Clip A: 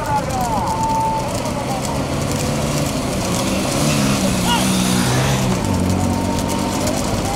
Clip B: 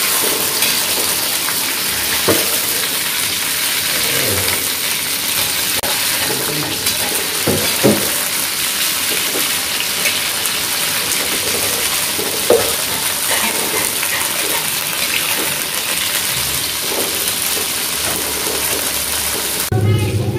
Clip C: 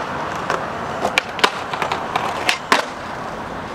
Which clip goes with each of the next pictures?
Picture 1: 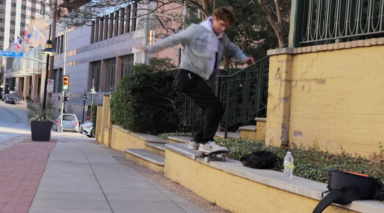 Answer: C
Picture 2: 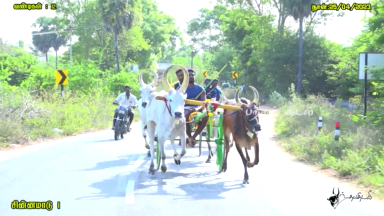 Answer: A